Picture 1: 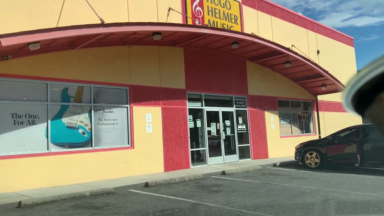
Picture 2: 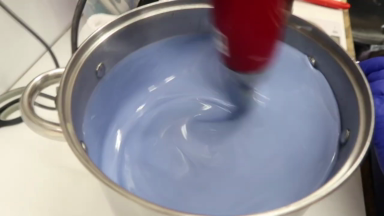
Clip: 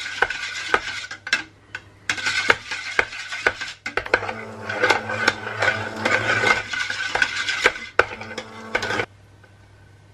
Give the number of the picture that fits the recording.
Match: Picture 2